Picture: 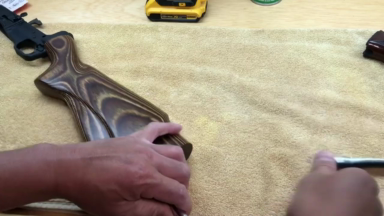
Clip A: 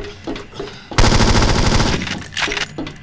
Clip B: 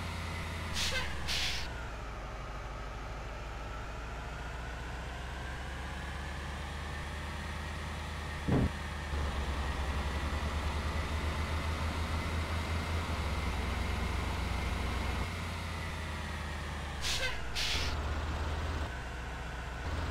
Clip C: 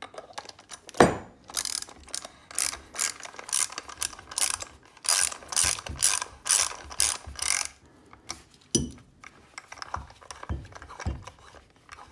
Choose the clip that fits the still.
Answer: C